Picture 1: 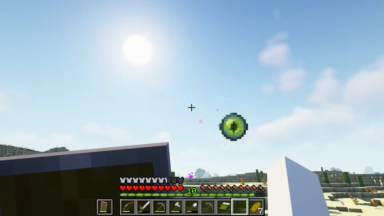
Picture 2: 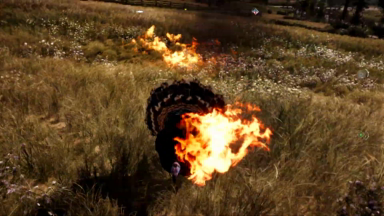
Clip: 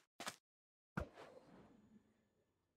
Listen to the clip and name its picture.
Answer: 1